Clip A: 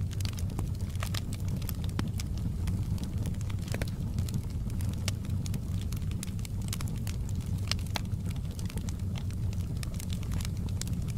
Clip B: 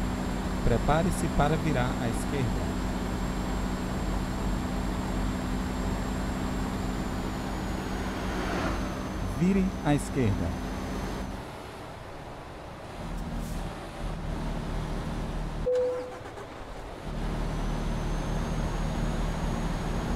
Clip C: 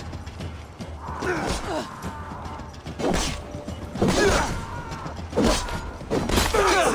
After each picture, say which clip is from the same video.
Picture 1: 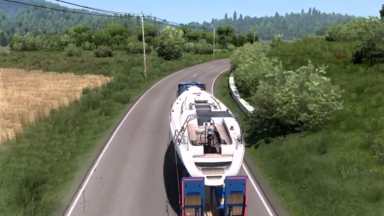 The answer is B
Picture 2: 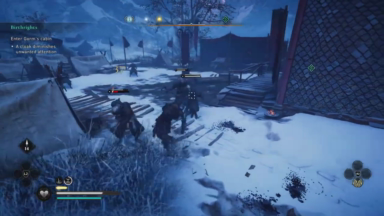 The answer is C